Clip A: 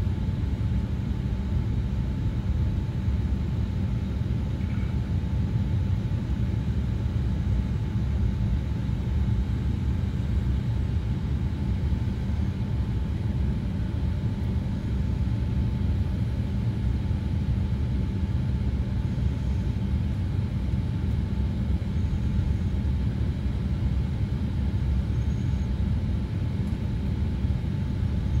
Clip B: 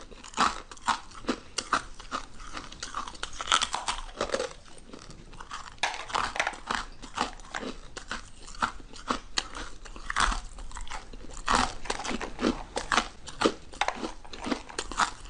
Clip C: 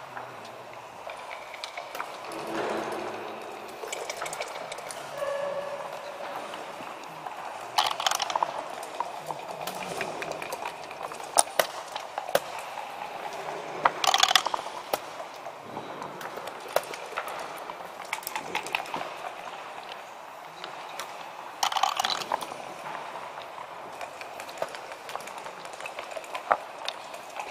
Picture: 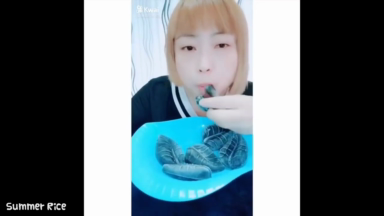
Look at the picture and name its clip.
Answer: B